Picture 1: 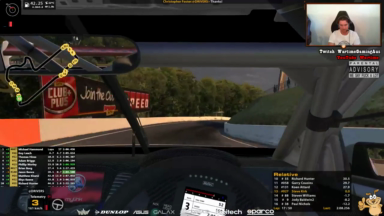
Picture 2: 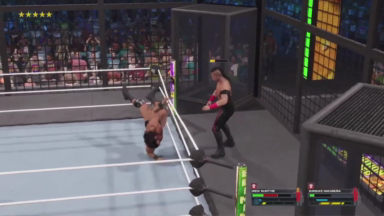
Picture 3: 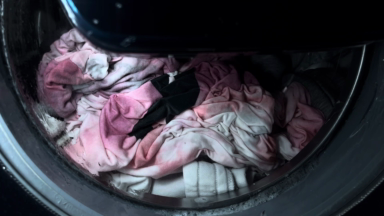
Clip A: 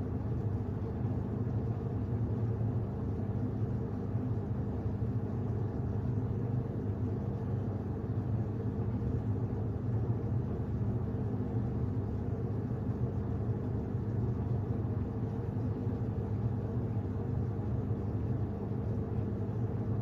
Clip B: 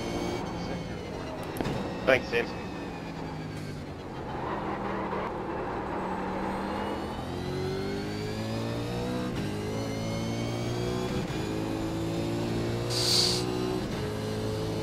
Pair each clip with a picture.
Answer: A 3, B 1